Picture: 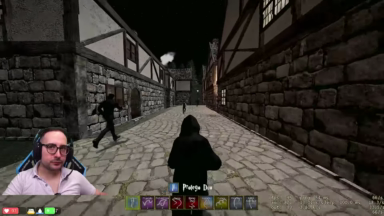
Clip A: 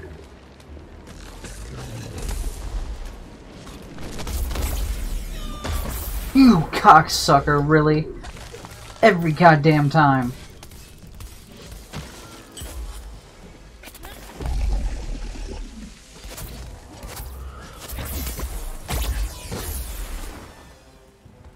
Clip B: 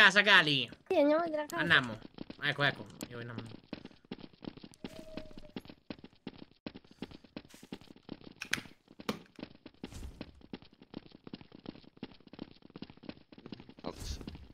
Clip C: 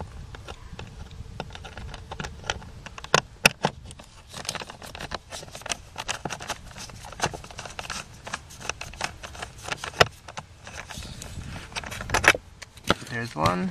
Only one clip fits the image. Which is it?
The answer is B